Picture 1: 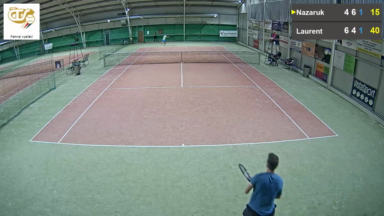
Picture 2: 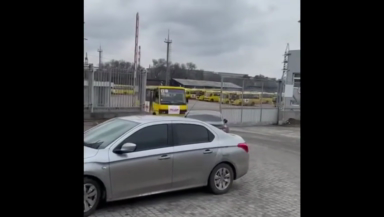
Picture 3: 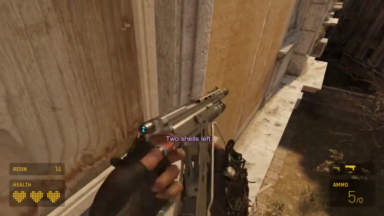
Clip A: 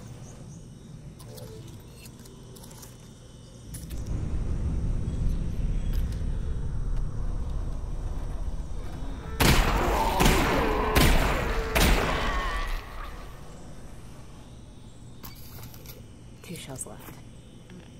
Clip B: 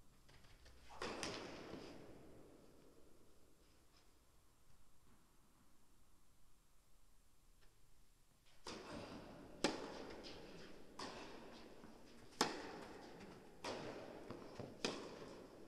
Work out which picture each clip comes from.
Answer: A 3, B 1